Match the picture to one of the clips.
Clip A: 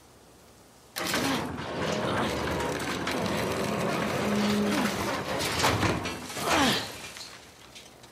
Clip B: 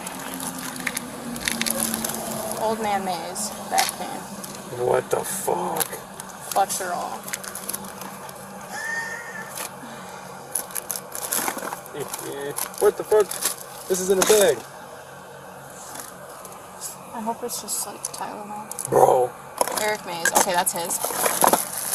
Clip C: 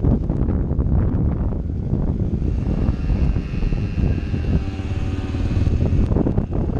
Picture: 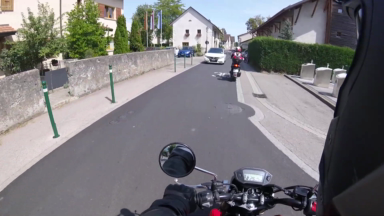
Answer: C